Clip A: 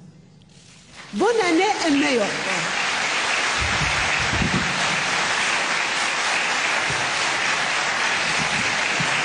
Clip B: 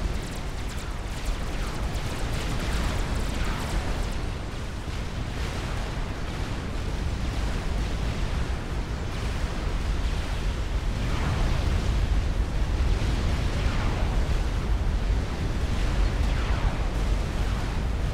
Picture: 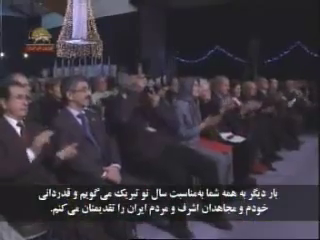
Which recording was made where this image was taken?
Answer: A